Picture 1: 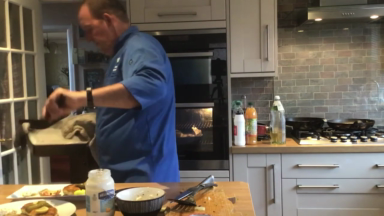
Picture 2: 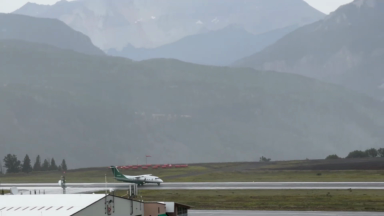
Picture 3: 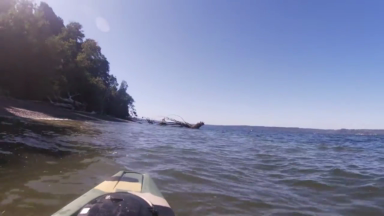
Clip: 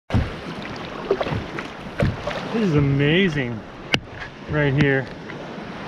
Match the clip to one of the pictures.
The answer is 3